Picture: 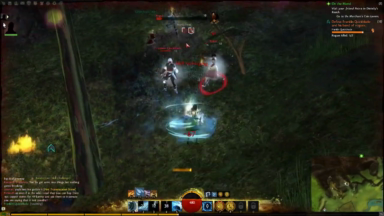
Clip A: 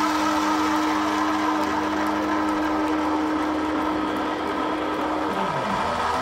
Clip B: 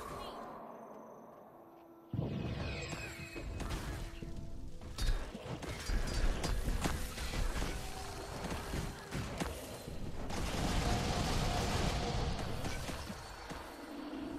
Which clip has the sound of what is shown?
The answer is B